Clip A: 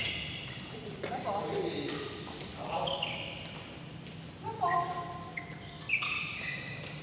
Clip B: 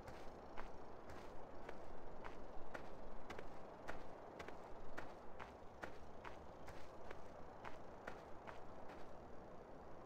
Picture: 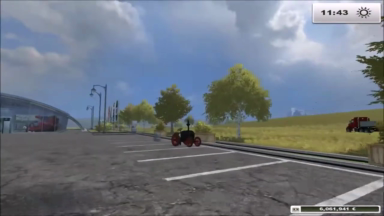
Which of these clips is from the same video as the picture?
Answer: B